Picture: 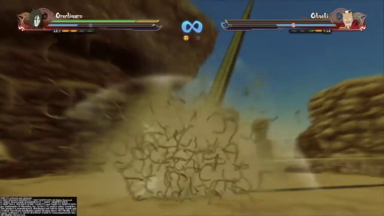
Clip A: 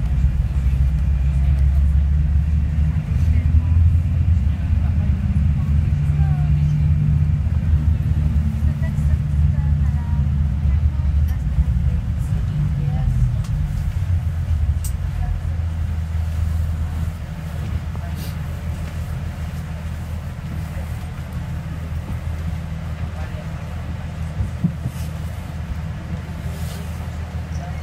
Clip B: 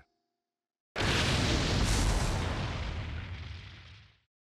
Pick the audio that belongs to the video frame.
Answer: B